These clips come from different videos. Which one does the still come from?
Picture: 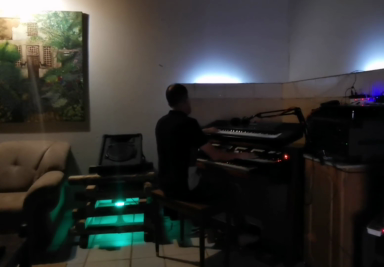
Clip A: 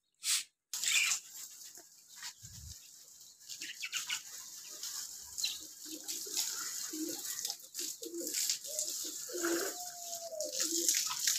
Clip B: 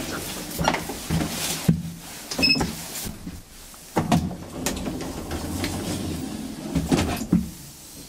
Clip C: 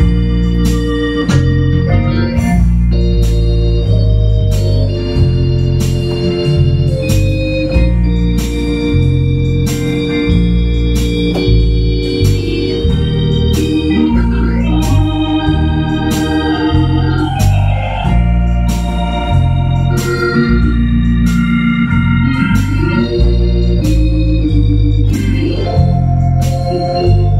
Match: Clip C